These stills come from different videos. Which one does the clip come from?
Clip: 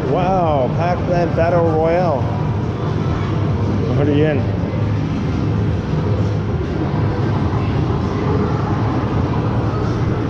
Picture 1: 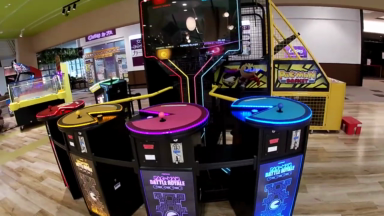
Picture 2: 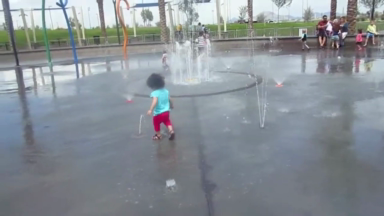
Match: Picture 1